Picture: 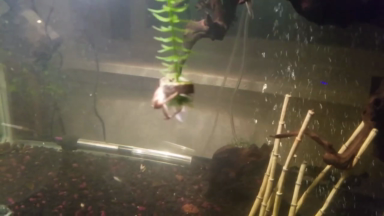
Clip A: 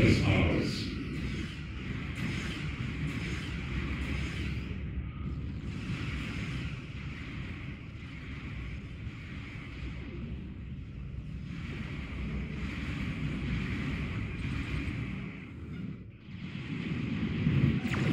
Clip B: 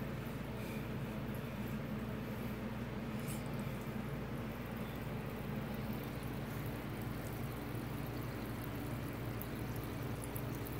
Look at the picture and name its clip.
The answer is B